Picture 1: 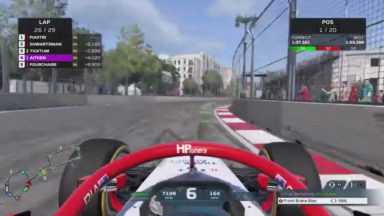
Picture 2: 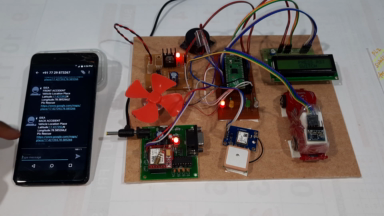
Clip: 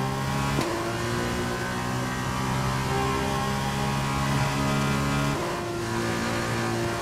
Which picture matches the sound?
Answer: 1